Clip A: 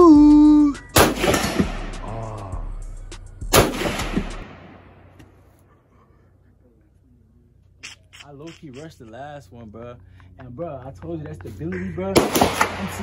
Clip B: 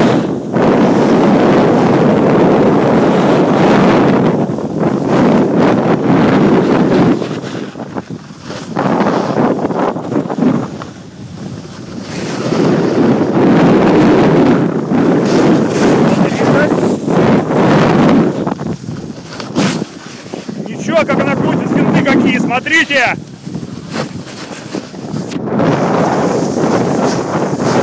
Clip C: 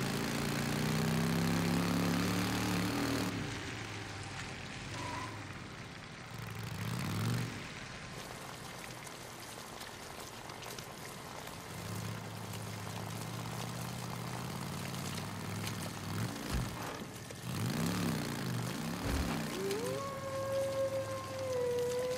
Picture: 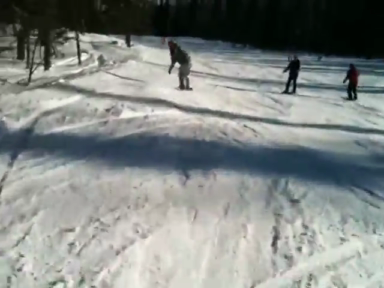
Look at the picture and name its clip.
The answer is B